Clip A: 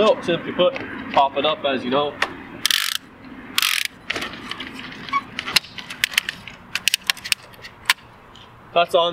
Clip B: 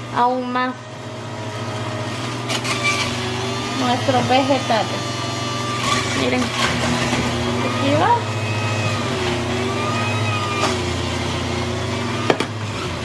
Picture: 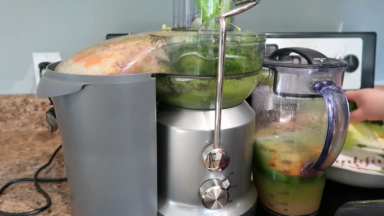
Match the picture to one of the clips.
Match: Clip B